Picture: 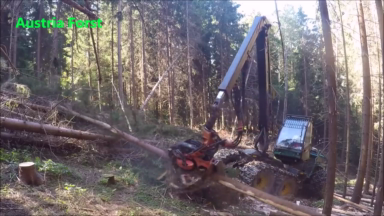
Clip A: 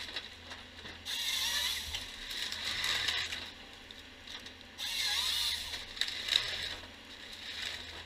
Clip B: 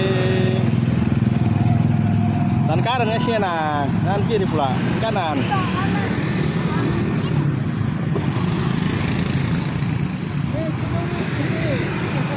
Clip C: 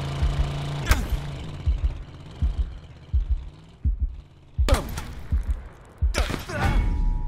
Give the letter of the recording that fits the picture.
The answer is A